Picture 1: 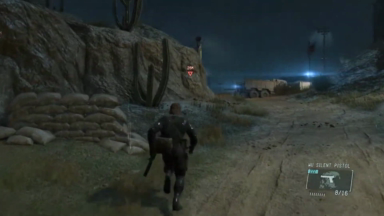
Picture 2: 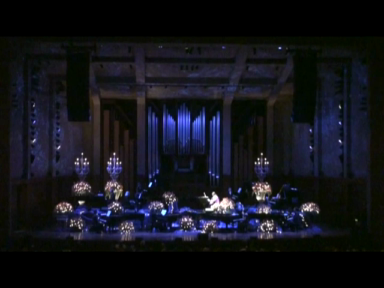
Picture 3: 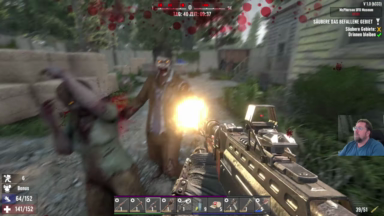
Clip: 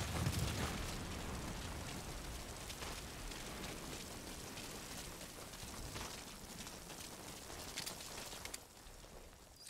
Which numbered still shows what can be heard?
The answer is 1